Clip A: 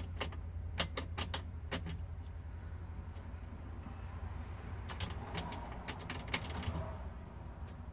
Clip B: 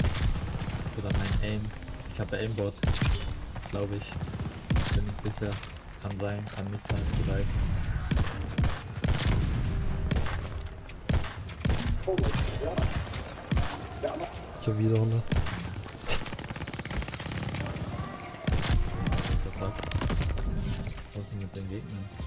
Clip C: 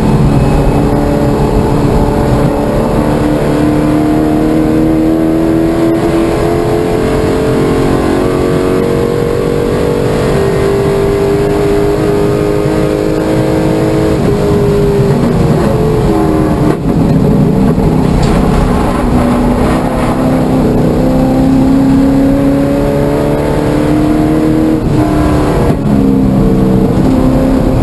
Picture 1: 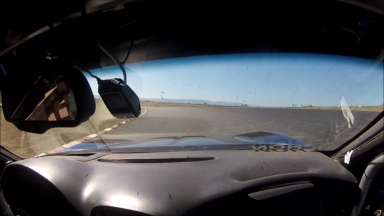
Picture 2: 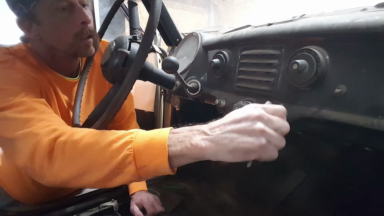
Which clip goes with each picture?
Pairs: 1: C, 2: A